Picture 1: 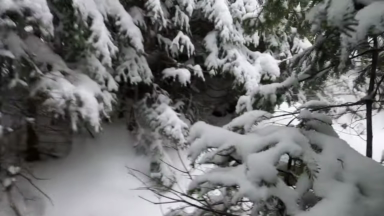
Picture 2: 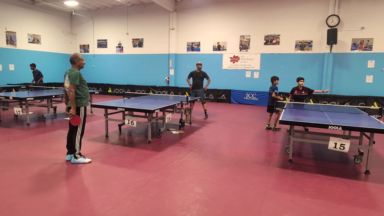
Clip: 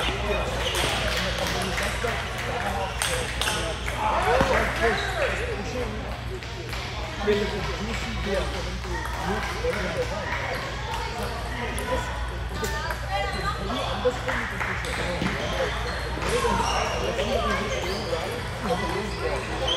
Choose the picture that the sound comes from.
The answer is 2